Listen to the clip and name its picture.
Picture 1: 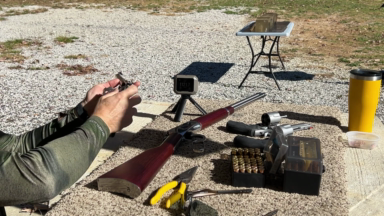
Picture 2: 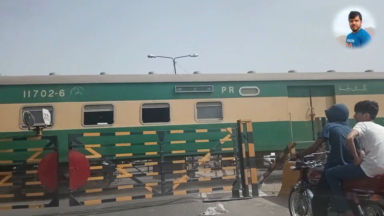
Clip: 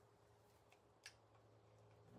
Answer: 1